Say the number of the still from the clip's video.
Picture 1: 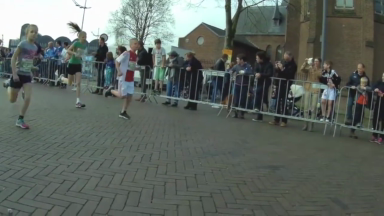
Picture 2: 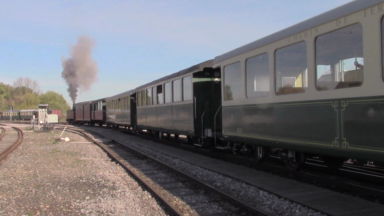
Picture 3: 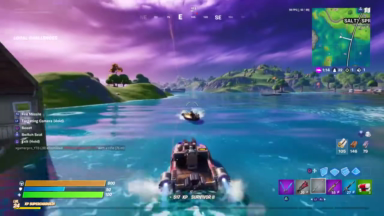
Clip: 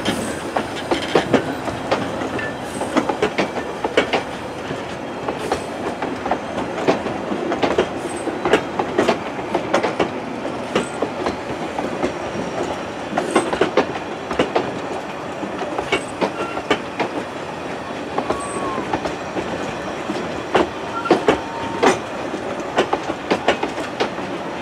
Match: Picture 2